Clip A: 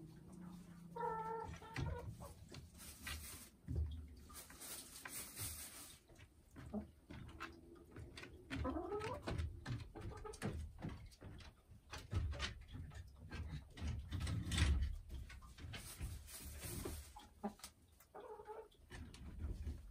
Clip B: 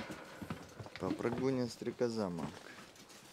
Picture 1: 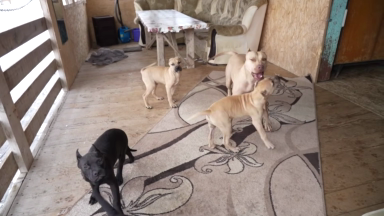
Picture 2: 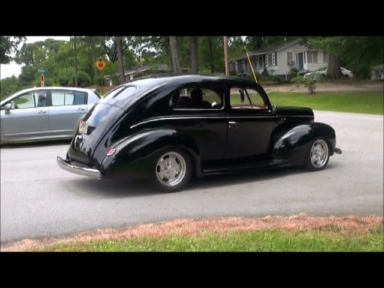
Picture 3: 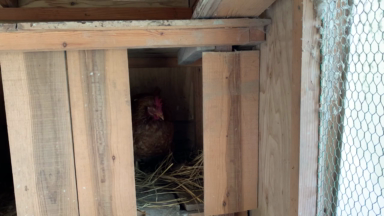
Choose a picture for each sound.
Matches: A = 3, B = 1